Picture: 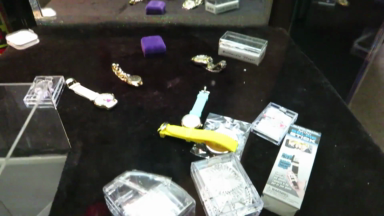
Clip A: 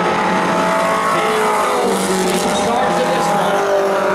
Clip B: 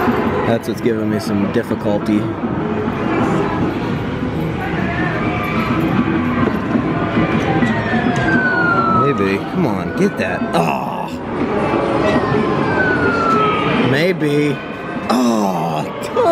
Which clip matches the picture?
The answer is B